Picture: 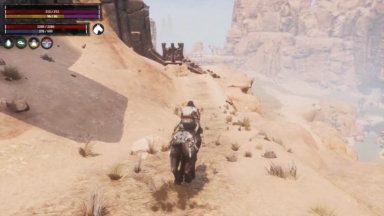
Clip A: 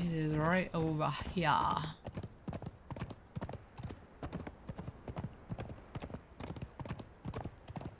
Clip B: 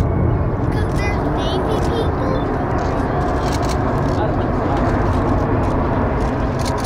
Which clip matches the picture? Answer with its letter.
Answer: A